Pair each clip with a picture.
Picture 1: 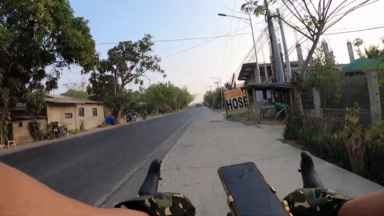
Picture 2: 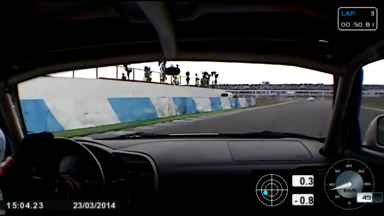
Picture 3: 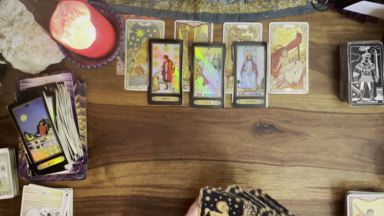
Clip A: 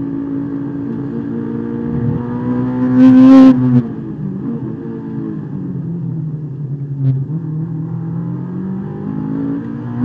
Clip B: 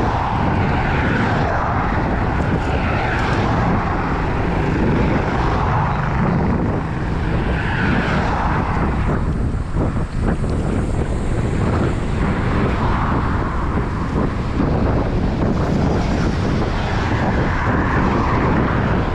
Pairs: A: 2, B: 1